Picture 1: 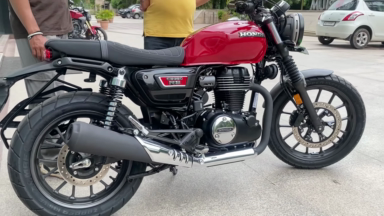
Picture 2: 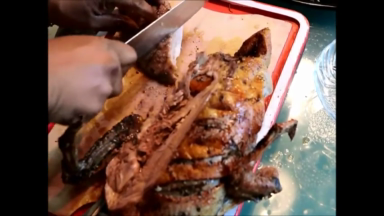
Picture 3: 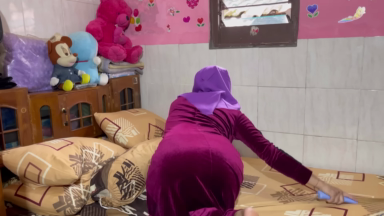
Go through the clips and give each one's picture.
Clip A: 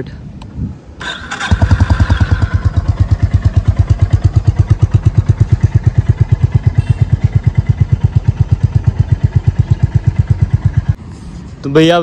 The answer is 1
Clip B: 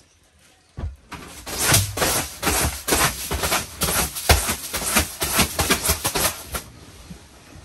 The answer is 3